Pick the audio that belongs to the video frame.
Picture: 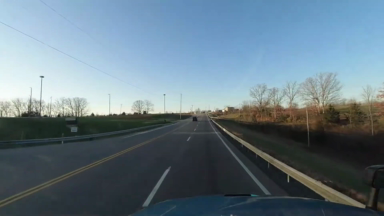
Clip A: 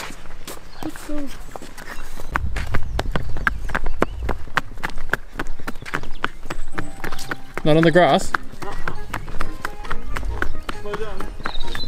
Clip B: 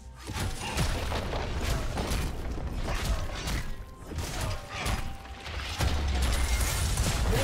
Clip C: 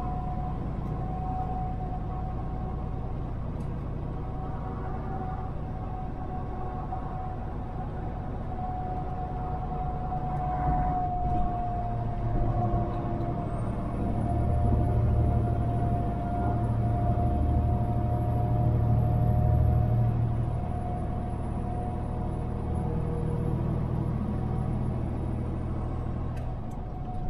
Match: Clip C